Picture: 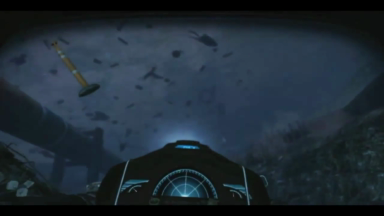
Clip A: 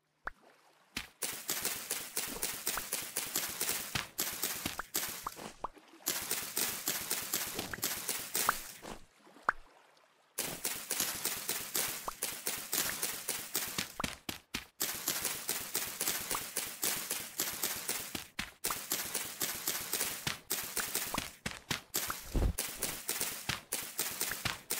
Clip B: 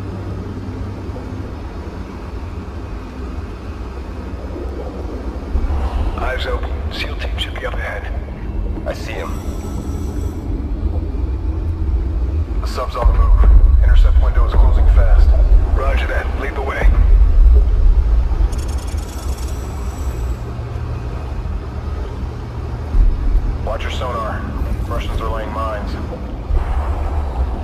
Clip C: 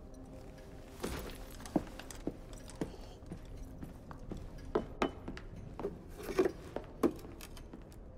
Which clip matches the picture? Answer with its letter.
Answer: B